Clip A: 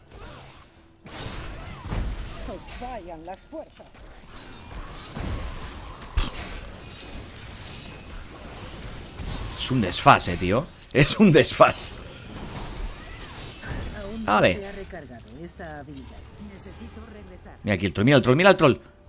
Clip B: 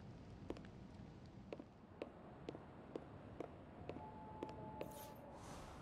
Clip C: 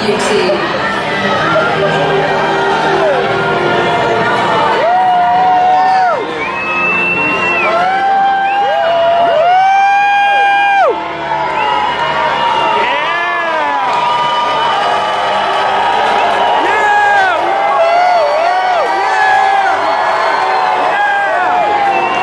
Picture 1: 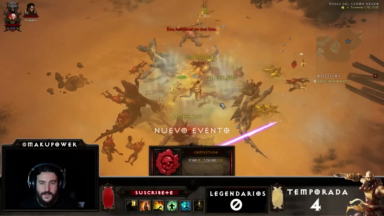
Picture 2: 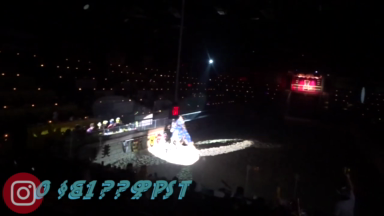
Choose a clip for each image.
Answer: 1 A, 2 C